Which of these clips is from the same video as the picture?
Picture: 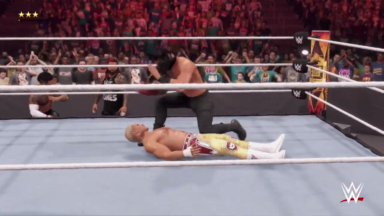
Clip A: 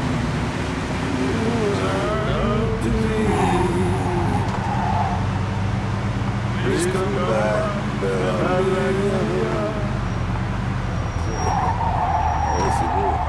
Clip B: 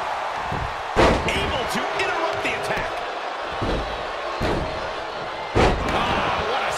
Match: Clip B